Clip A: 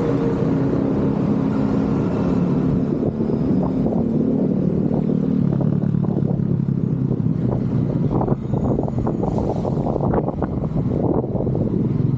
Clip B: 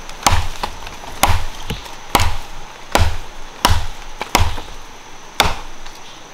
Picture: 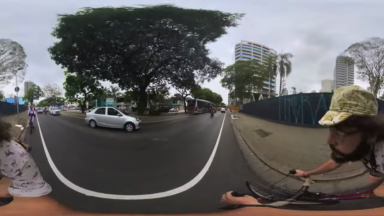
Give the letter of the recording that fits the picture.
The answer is A